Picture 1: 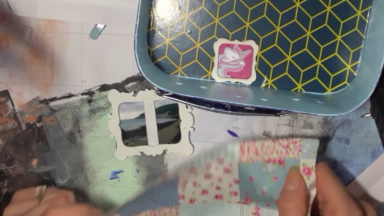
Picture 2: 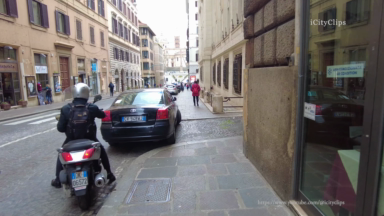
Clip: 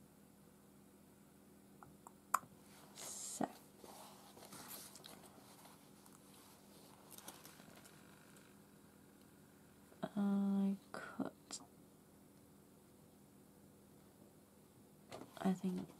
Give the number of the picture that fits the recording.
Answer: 1